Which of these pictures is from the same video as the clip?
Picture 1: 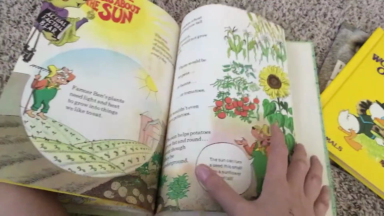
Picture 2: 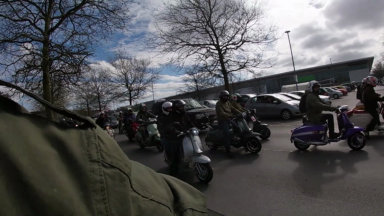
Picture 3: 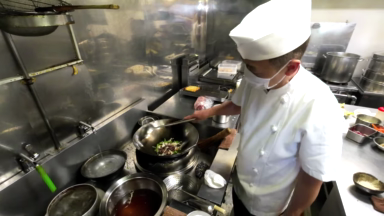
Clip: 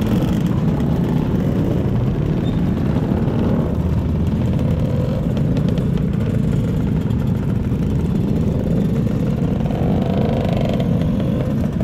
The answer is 2